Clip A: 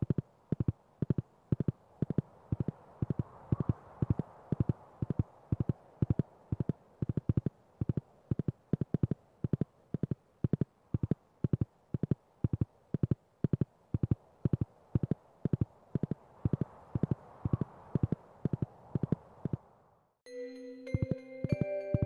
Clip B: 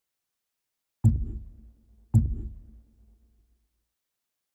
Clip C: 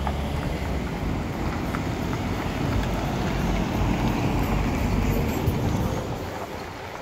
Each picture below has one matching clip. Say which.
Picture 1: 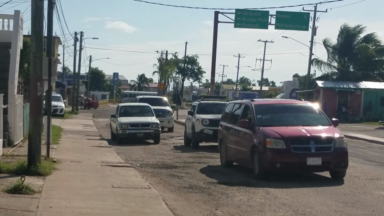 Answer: C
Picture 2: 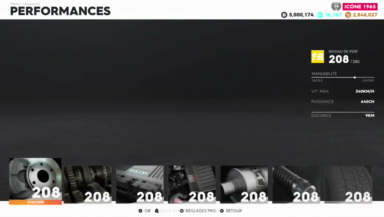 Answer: B